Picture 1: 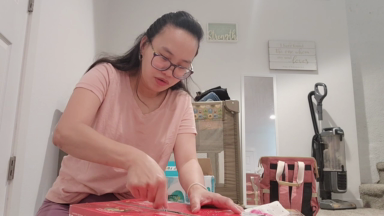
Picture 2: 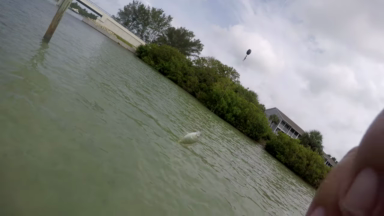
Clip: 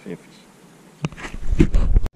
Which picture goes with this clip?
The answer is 2